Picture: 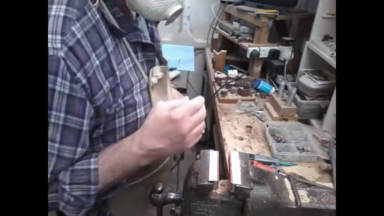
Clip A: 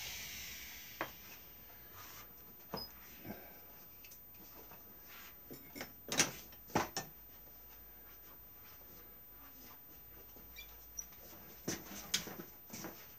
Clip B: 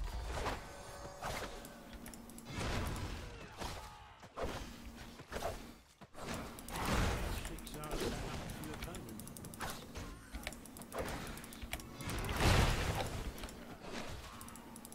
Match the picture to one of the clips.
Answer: A